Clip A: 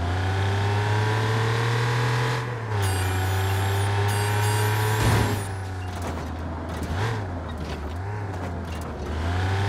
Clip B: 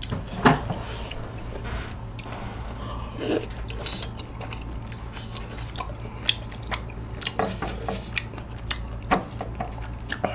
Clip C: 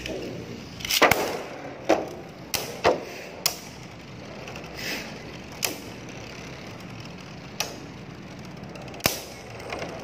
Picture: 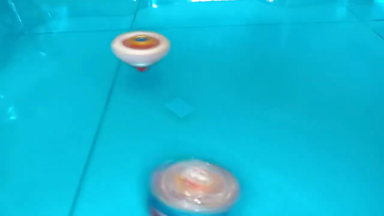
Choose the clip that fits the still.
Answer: C